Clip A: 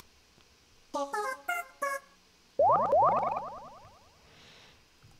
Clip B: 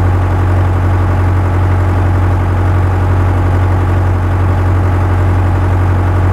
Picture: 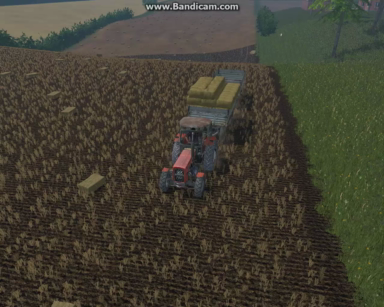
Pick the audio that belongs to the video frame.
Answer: B